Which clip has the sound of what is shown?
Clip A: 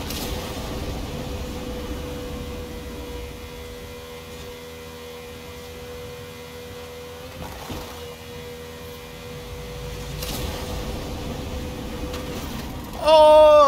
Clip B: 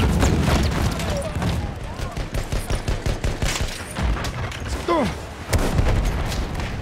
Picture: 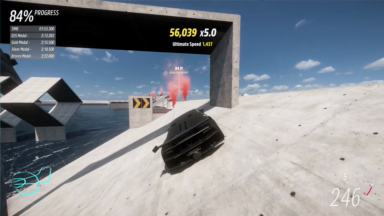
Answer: A